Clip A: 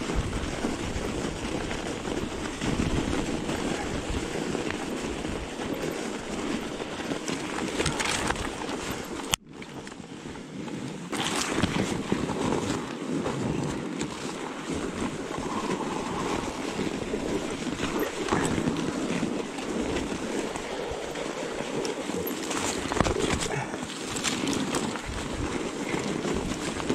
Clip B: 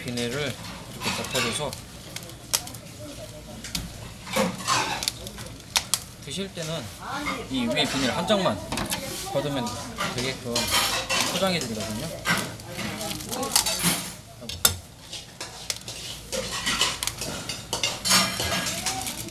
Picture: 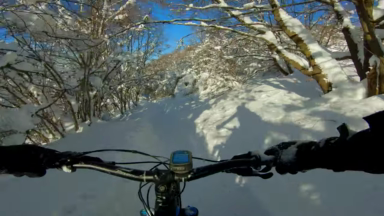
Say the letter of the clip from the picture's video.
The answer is A